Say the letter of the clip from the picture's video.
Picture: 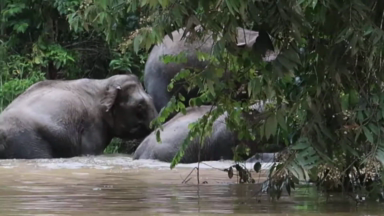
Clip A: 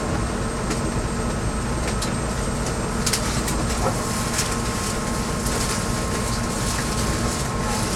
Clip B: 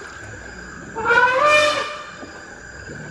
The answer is B